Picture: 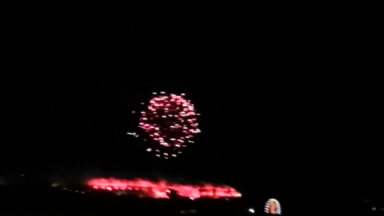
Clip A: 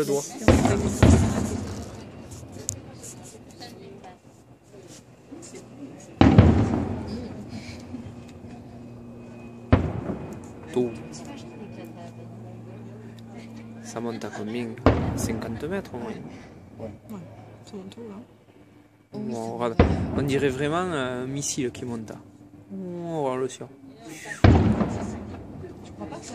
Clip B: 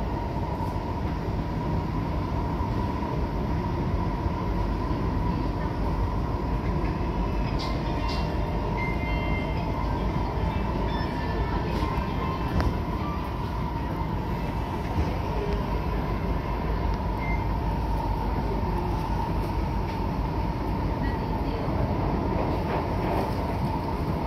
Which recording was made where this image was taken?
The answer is A